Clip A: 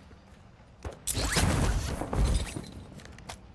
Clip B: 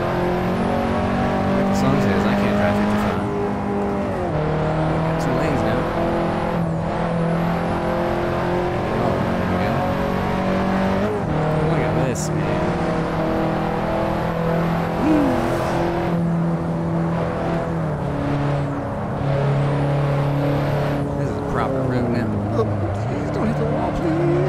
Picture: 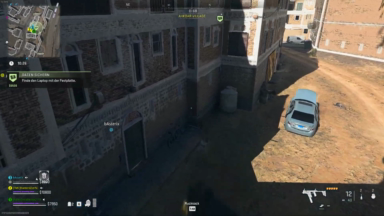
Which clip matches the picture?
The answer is A